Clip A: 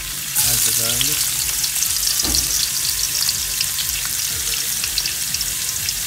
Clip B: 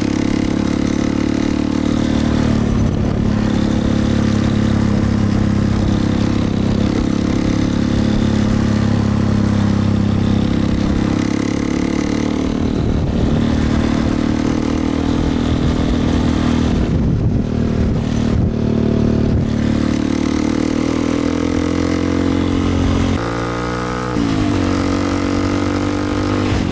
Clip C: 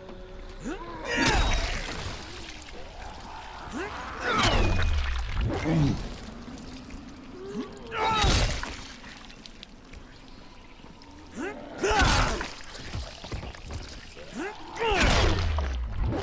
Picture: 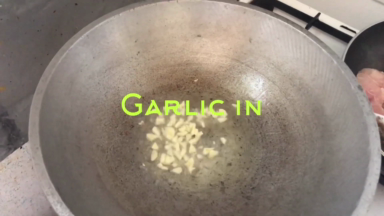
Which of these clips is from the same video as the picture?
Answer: A